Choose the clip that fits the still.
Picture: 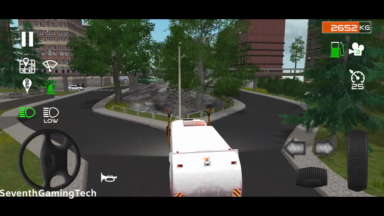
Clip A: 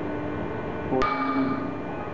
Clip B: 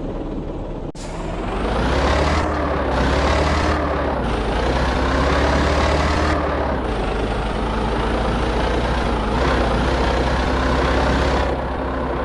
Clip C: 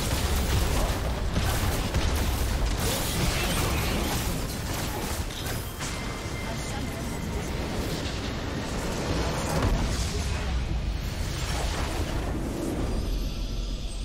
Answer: B